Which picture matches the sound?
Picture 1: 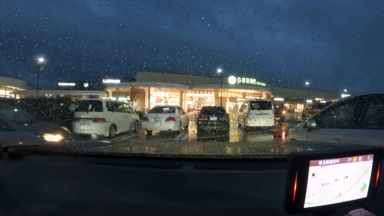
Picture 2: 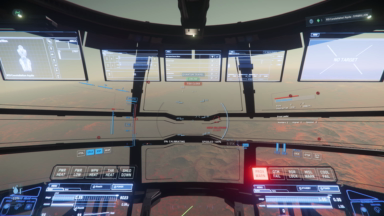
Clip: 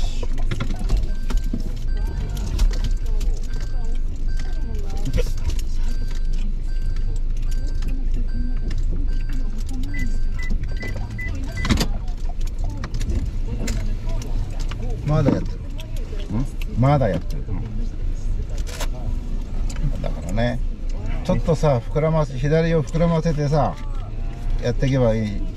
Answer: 1